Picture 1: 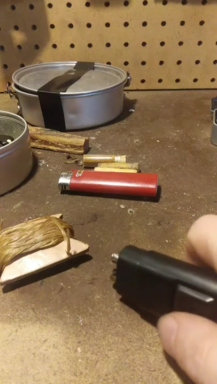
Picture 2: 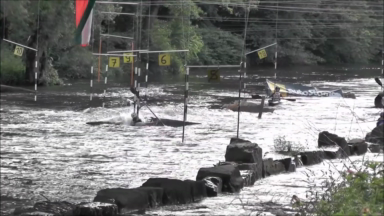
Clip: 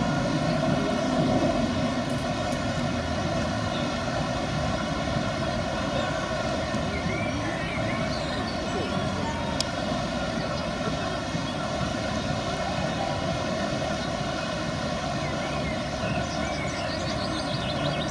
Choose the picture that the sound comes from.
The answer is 2